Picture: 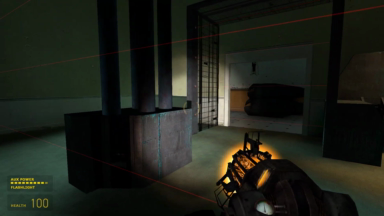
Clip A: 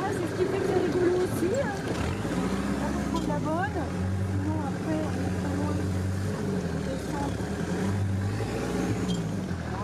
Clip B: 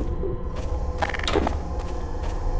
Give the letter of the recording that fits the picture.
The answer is B